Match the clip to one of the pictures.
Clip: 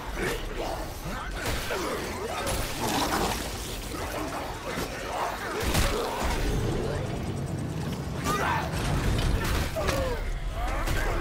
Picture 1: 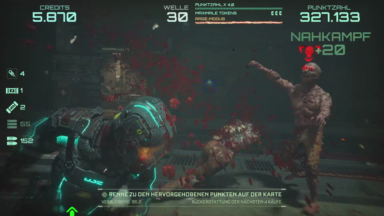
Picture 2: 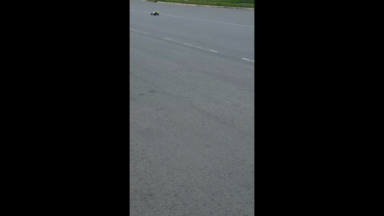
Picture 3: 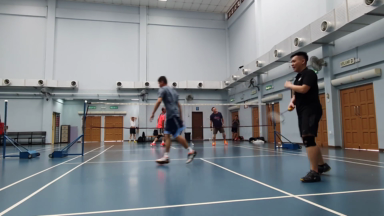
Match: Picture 1